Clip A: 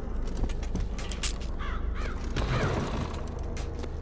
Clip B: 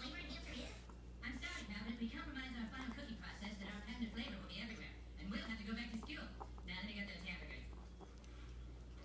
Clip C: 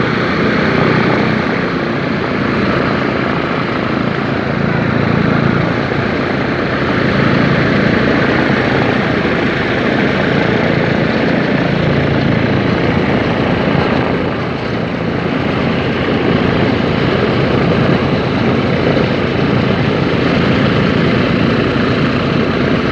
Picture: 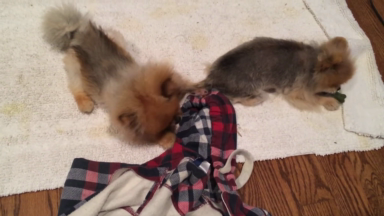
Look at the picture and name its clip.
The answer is B